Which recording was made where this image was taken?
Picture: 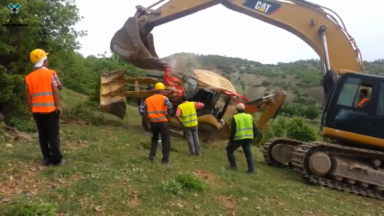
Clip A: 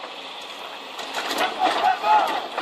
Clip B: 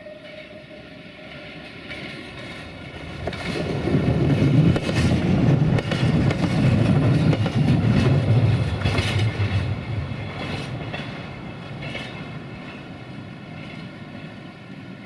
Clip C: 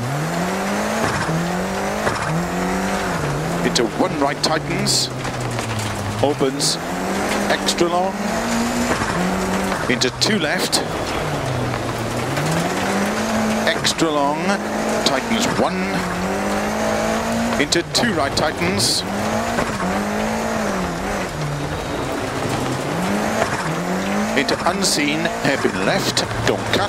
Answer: A